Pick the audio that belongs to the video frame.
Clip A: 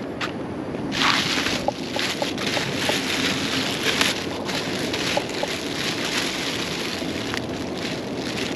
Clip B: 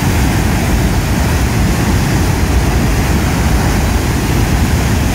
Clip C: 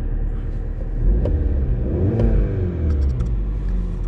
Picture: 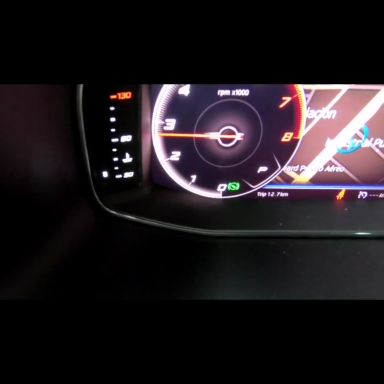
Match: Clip C